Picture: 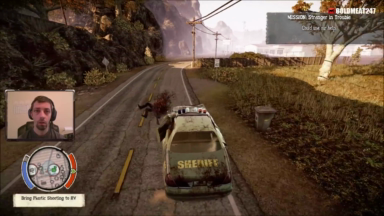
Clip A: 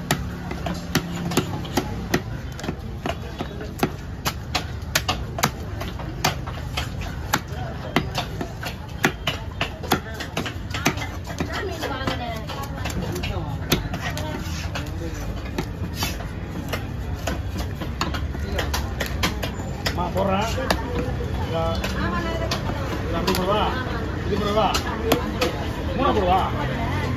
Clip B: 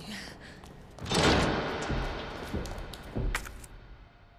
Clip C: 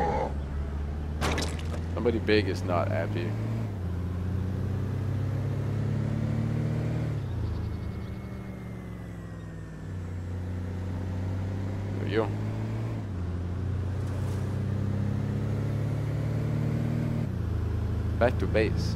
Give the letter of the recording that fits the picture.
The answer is C